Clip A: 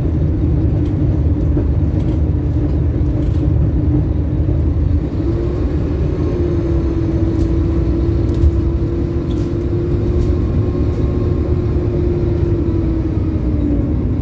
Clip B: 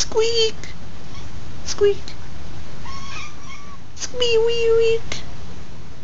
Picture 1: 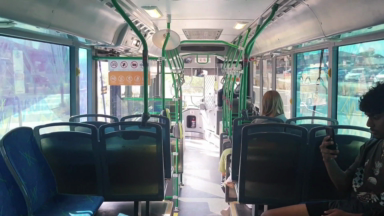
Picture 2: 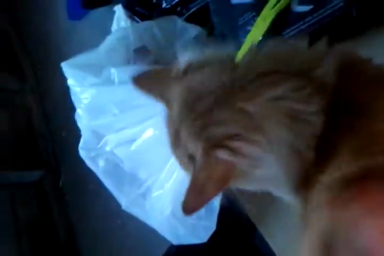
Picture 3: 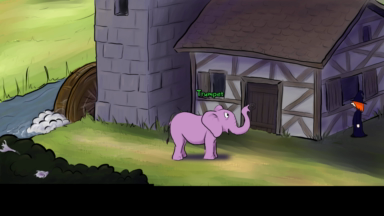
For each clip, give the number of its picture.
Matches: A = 1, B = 2